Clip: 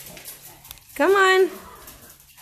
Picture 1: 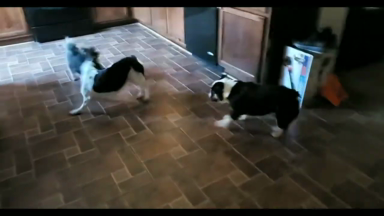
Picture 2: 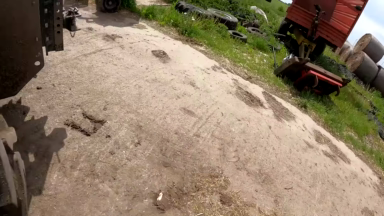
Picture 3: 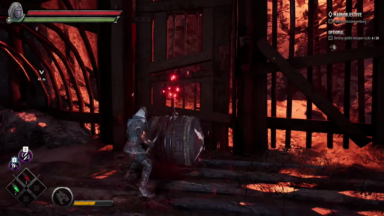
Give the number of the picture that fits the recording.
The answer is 1